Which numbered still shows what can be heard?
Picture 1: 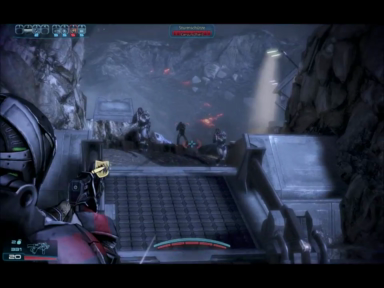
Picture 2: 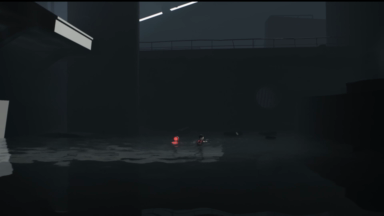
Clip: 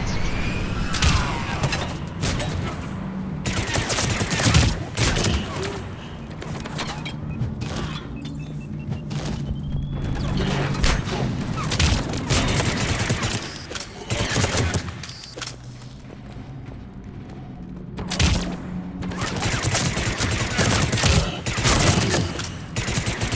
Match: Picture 1